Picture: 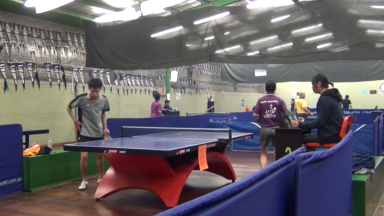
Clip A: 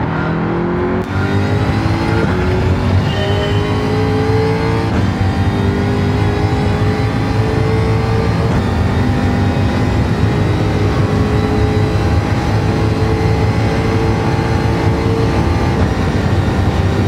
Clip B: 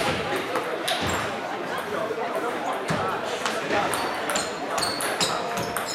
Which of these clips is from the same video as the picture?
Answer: B